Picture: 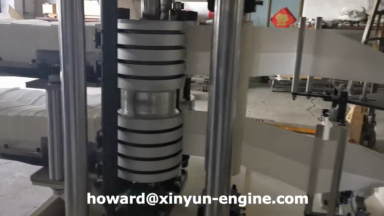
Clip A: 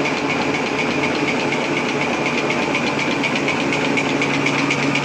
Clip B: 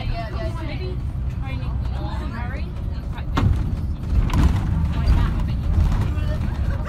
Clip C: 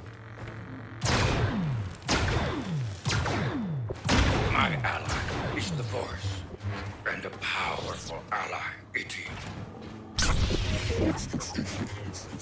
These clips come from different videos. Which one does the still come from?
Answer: A